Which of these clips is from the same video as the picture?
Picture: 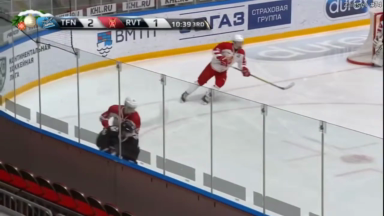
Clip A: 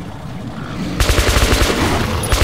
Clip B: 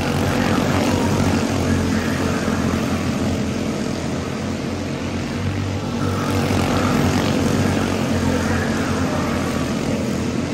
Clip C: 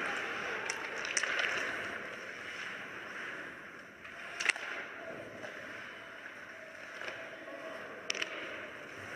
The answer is C